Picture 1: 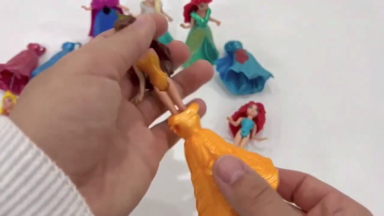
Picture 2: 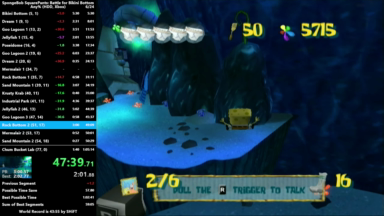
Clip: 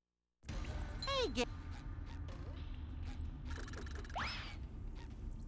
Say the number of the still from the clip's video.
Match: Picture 2